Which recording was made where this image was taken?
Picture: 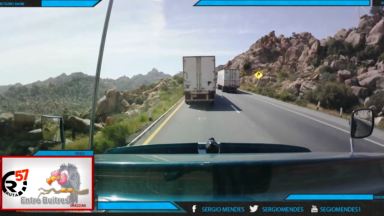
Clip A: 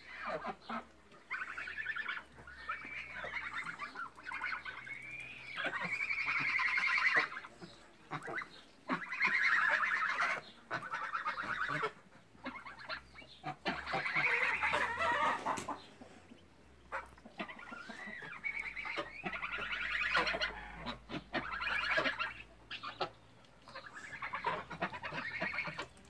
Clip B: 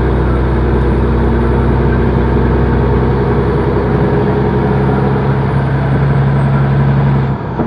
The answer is B